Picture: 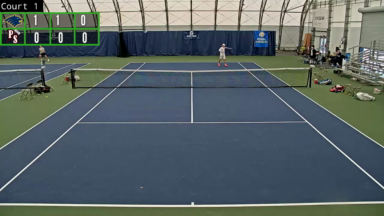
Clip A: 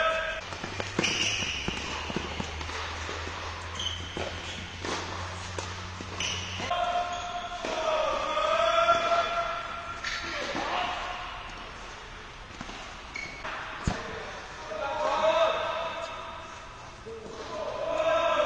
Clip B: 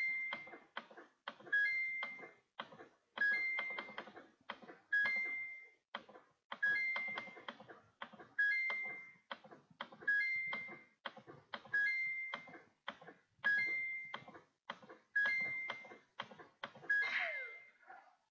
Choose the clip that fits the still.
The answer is A